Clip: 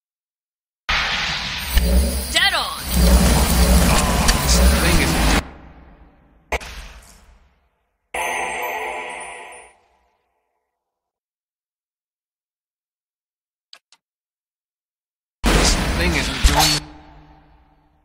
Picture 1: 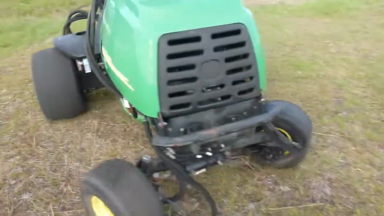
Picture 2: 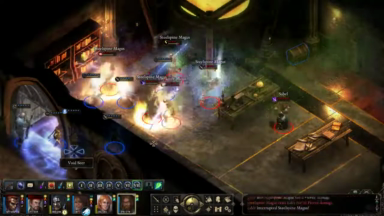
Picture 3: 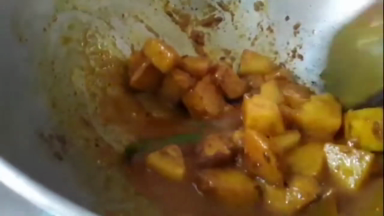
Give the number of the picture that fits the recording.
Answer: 2